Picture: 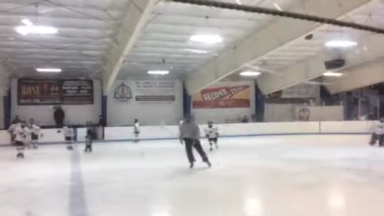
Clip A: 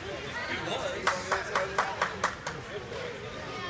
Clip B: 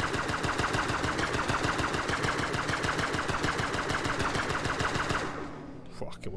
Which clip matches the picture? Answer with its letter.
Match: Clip A